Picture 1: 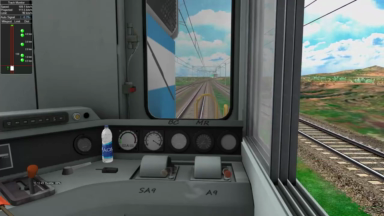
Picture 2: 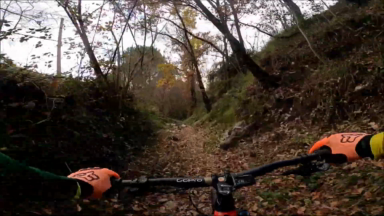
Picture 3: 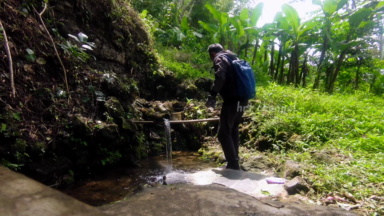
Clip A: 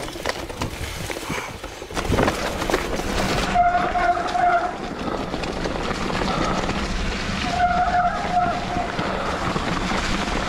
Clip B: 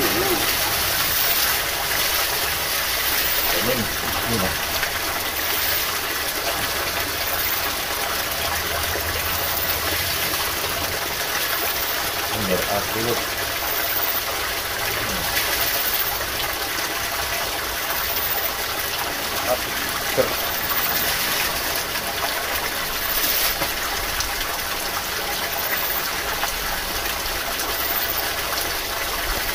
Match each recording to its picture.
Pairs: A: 2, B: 3